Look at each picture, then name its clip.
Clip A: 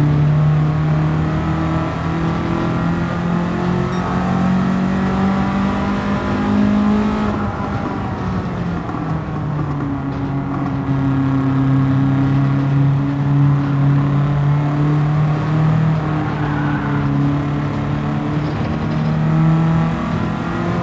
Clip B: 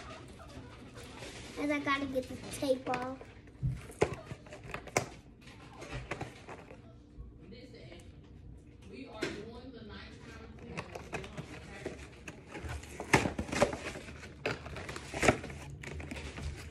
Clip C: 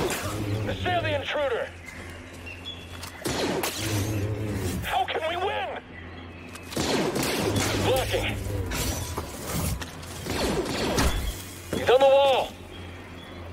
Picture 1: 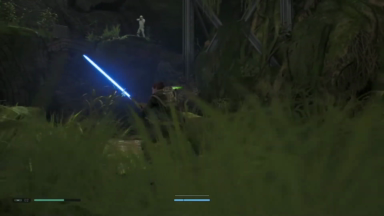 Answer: C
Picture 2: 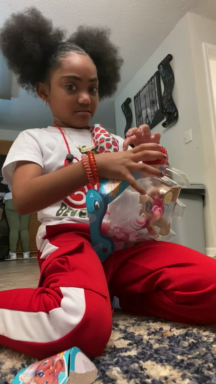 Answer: B